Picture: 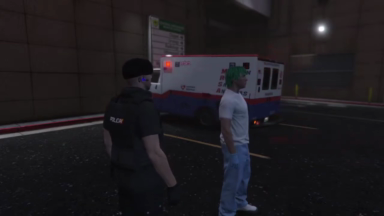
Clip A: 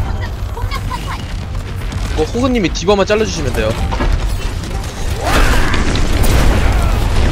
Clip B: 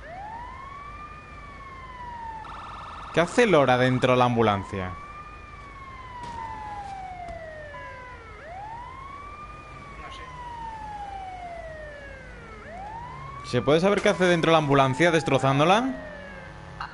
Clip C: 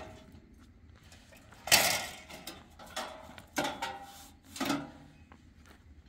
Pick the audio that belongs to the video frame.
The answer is B